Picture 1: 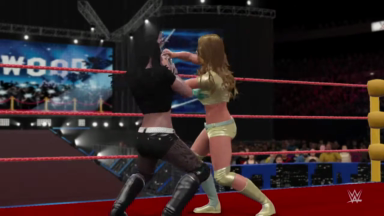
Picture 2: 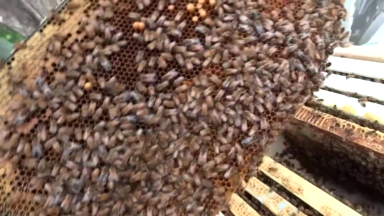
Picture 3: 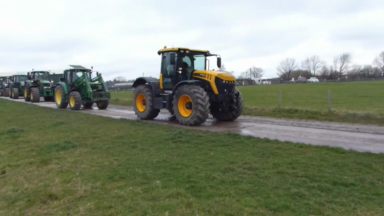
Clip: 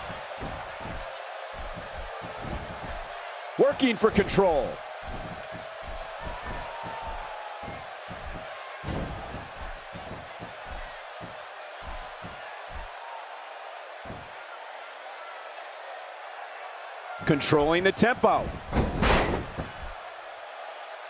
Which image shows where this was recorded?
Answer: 1